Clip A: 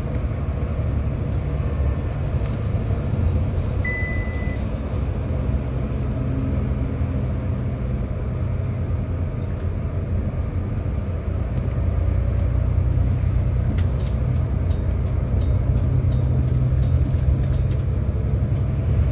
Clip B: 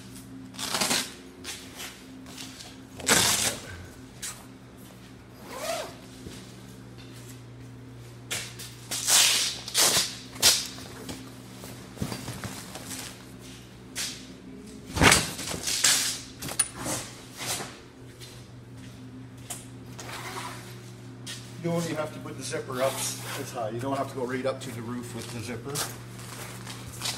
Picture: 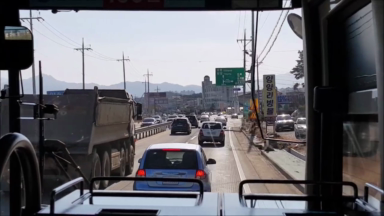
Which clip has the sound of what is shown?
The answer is A